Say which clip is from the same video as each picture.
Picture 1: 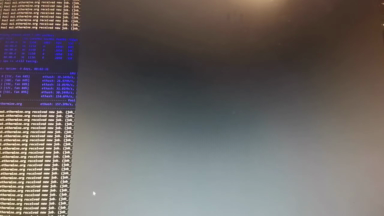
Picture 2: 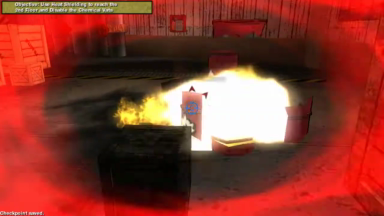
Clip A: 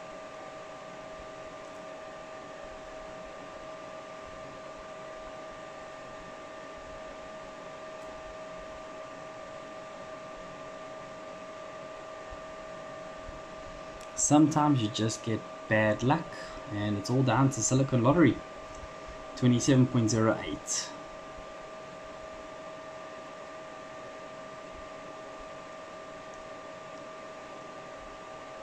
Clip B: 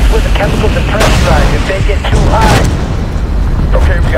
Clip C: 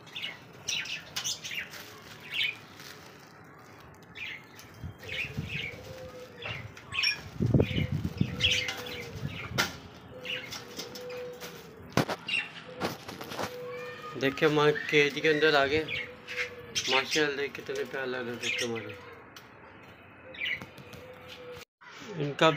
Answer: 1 A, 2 B